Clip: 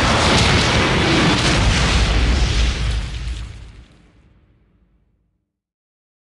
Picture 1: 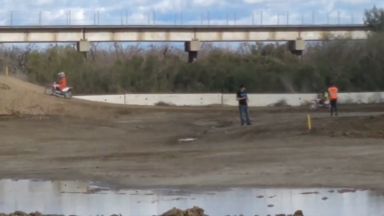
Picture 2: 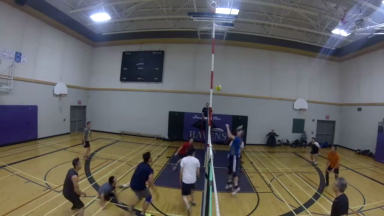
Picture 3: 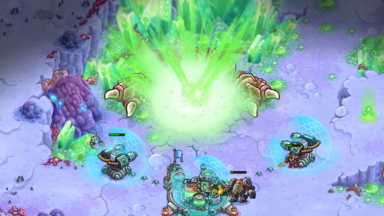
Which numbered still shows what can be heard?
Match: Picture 3